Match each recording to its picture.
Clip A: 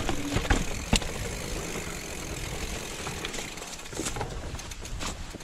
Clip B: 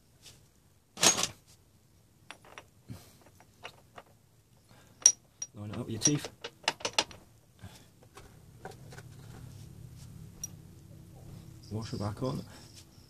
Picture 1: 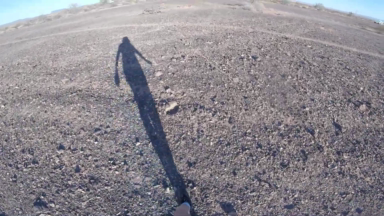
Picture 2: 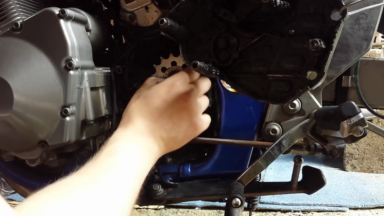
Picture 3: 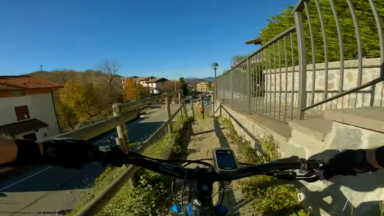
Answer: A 3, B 2